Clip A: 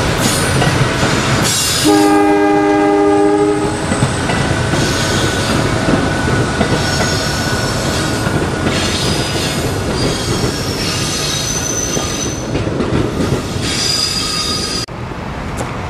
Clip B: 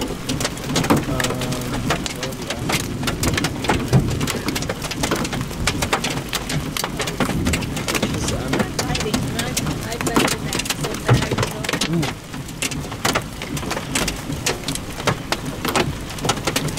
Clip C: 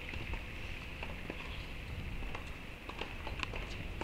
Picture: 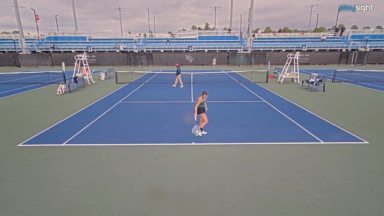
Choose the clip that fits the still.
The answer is C